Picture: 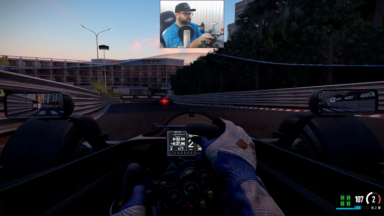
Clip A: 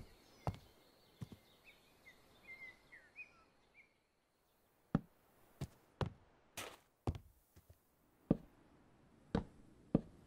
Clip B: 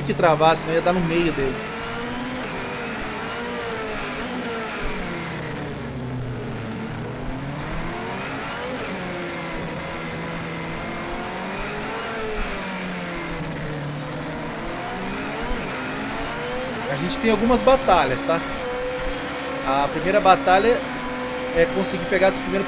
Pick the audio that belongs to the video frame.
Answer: B